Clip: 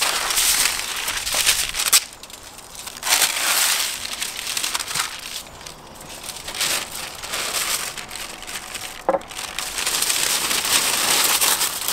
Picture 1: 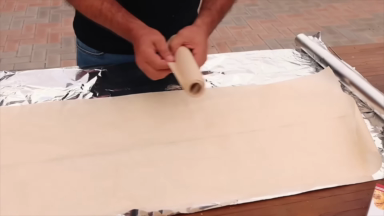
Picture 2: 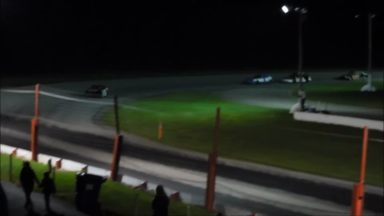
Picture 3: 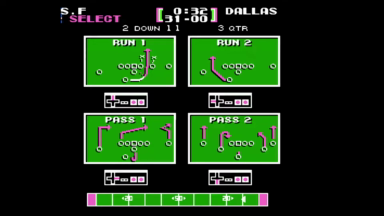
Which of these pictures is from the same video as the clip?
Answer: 1